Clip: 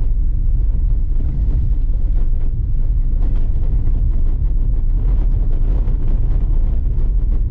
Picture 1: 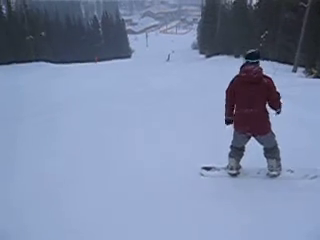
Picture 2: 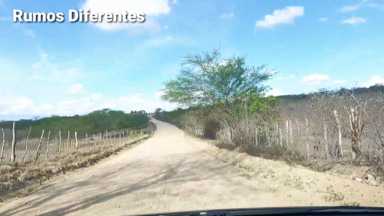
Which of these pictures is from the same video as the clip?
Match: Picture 2